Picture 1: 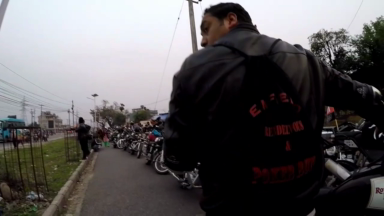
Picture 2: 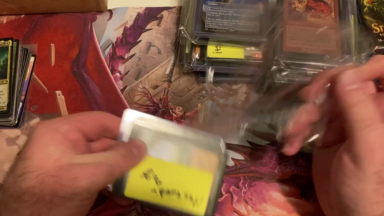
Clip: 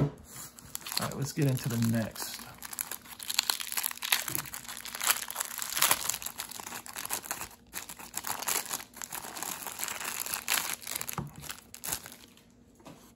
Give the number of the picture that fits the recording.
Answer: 2